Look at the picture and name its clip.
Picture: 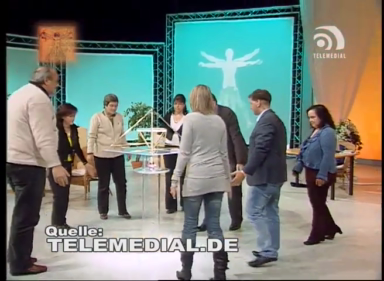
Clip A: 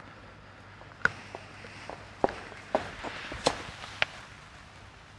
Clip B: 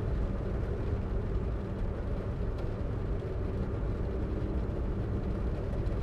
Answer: A